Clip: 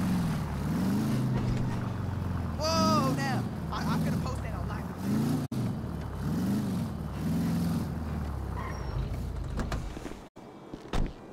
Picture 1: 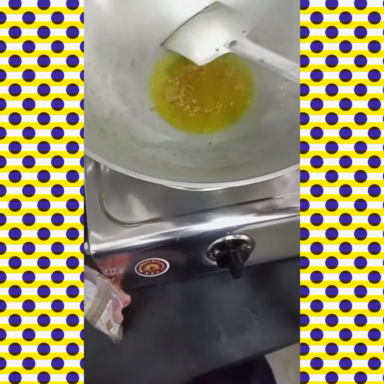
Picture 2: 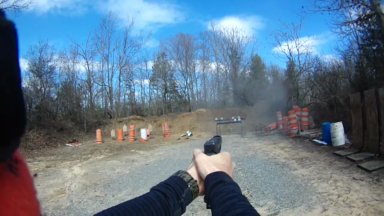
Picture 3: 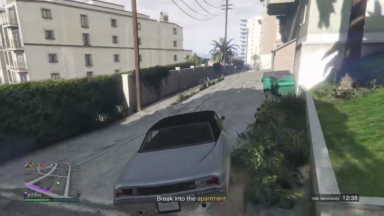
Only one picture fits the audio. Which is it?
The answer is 3